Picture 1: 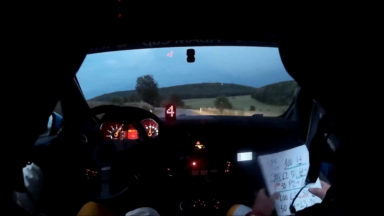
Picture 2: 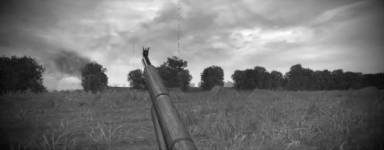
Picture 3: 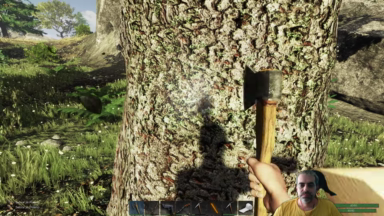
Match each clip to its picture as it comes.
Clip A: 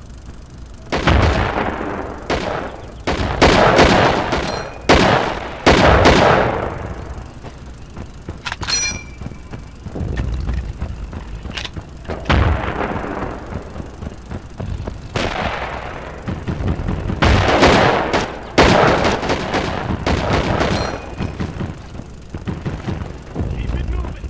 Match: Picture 2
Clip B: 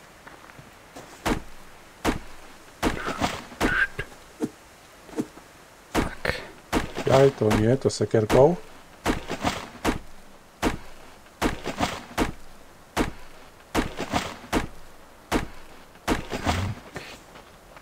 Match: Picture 3